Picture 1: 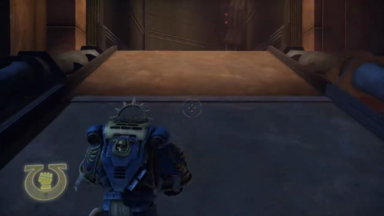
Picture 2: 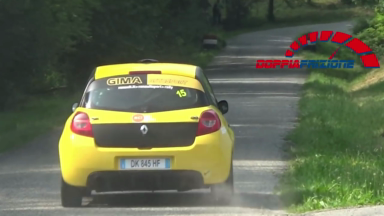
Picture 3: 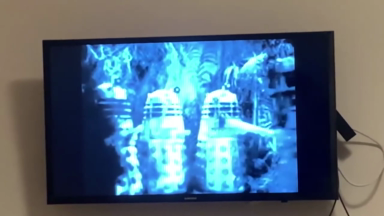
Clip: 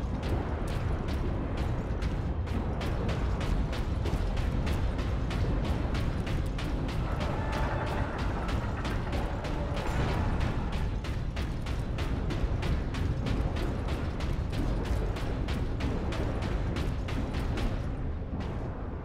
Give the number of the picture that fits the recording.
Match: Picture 1